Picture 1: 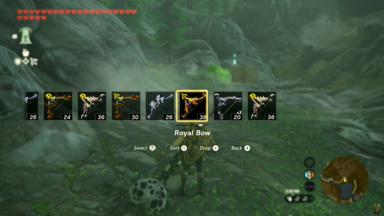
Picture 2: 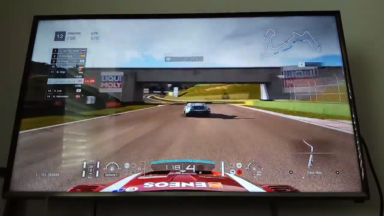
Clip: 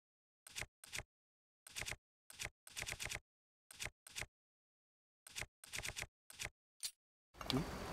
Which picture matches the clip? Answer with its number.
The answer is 1